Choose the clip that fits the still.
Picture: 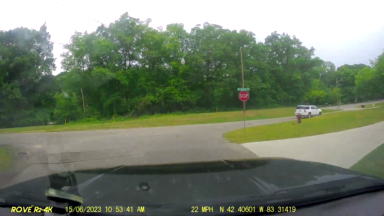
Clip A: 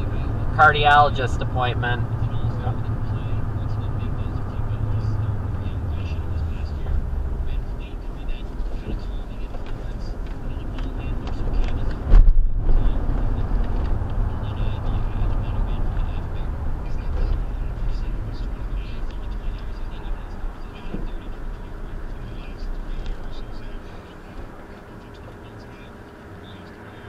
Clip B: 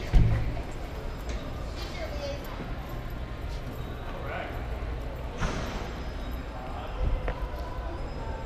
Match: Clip A